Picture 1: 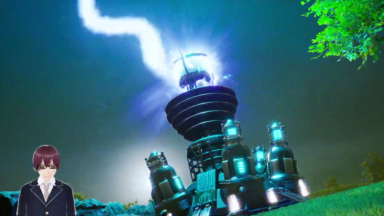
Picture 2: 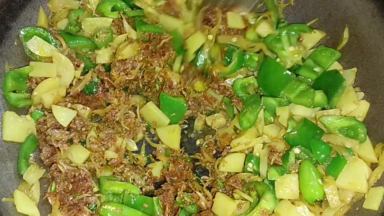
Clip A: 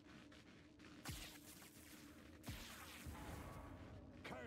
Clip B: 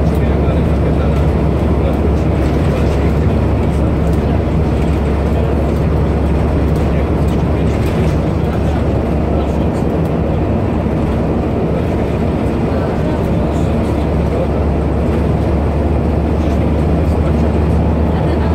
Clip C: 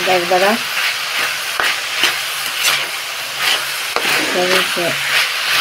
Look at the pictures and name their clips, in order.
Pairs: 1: A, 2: C